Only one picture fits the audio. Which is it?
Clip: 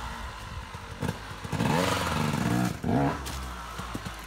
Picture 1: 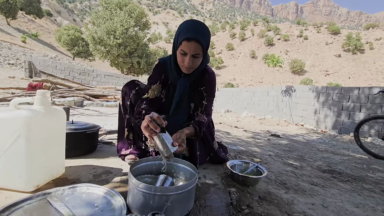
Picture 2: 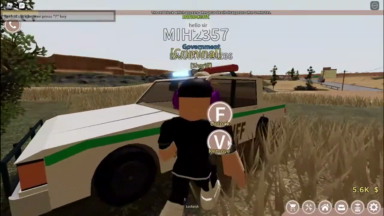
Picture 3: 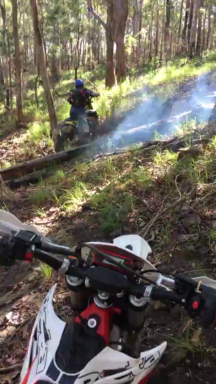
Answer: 3